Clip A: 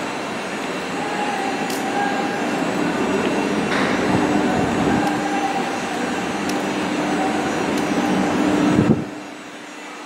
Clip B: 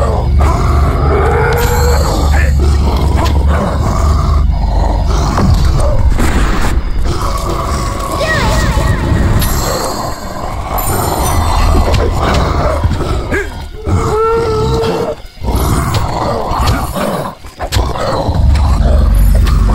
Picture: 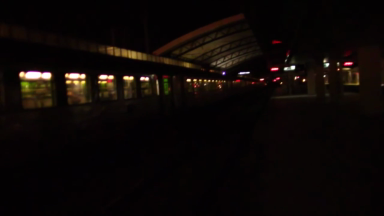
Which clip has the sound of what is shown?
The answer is A